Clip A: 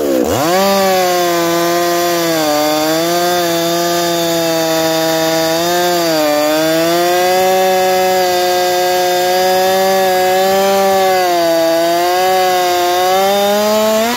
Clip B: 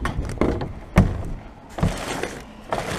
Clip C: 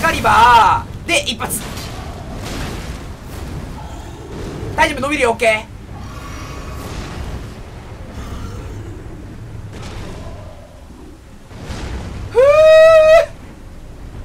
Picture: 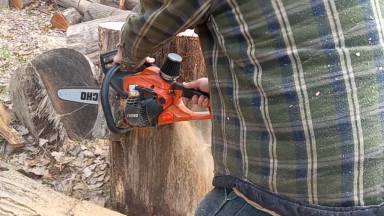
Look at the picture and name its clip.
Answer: A